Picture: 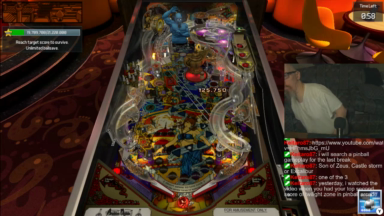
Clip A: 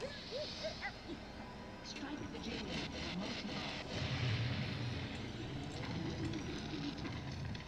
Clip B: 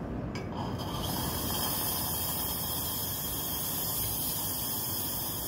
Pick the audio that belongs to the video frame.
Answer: A